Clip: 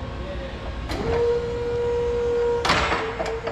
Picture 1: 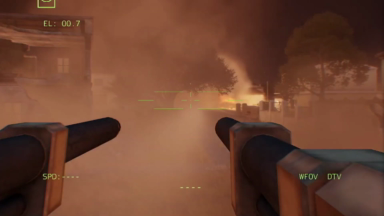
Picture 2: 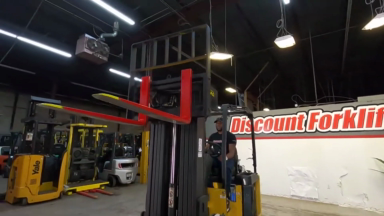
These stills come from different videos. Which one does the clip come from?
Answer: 2